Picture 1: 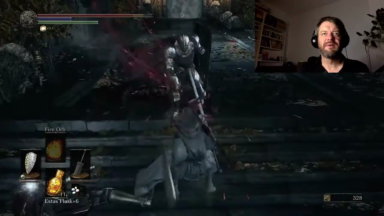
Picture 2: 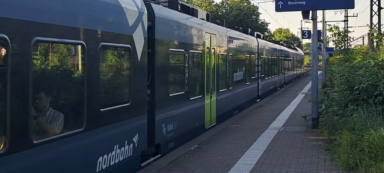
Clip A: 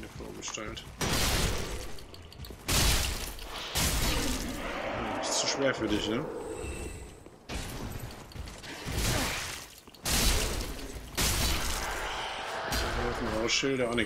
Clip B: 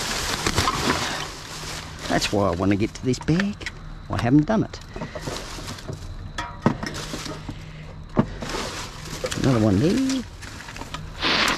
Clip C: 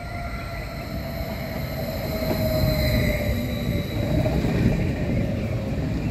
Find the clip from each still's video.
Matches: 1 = A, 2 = C